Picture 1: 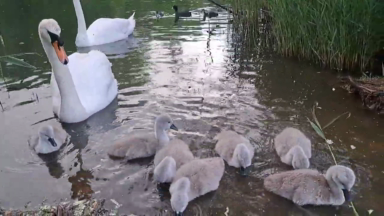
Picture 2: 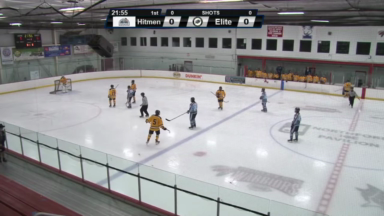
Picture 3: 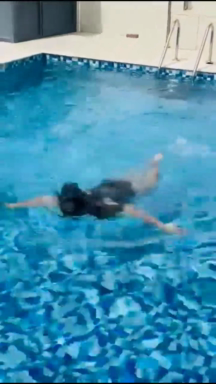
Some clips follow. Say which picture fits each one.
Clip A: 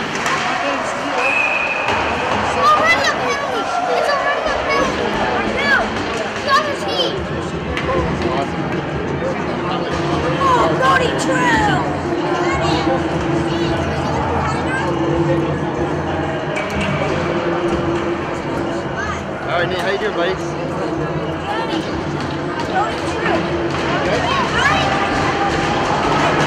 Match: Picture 2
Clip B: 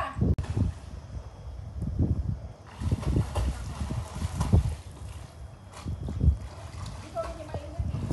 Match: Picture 3